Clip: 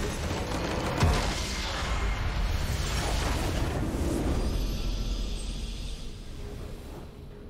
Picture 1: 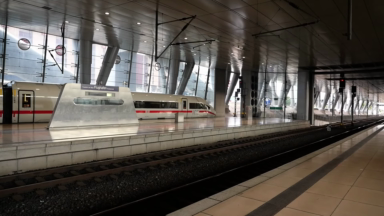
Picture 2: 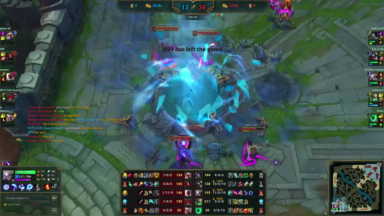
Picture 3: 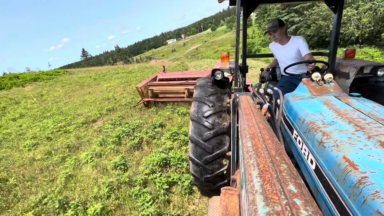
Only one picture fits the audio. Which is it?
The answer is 2